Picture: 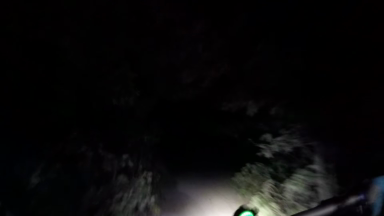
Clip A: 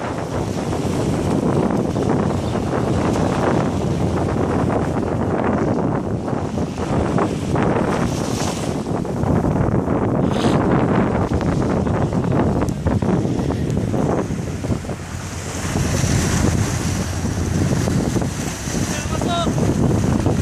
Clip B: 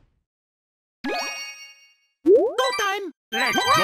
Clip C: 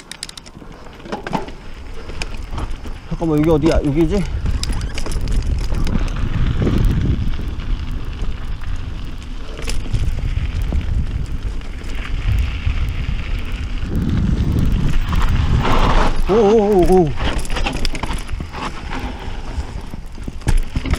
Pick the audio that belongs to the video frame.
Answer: C